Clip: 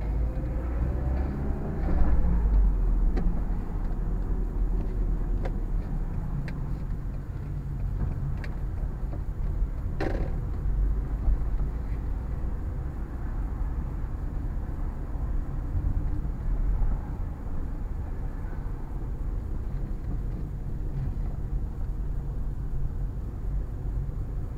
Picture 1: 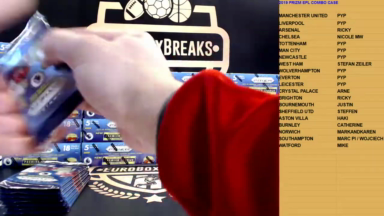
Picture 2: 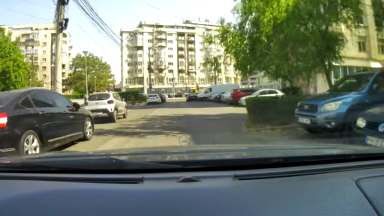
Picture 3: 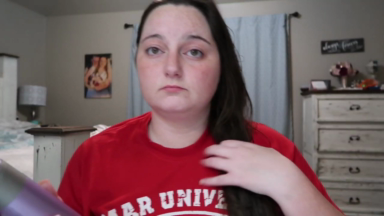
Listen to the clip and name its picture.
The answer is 2